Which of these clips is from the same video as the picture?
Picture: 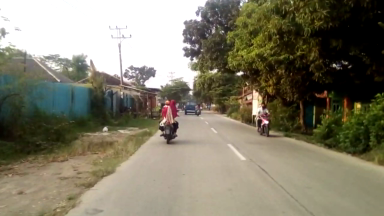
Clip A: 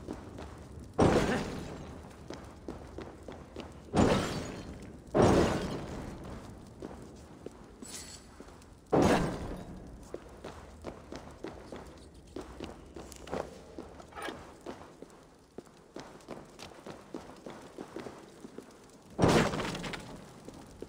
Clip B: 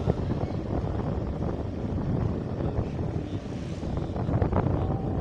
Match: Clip B